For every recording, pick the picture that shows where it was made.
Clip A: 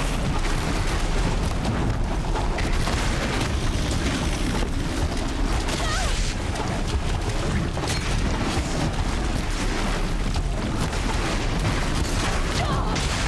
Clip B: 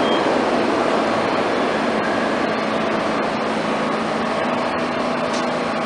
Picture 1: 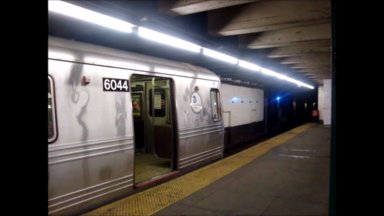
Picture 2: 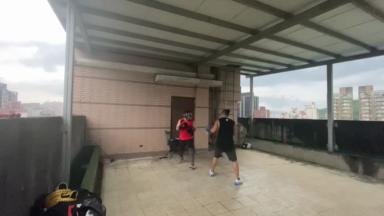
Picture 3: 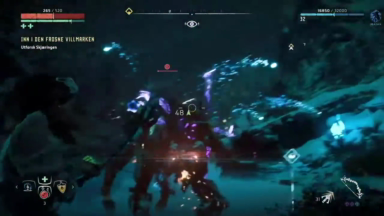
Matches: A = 3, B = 1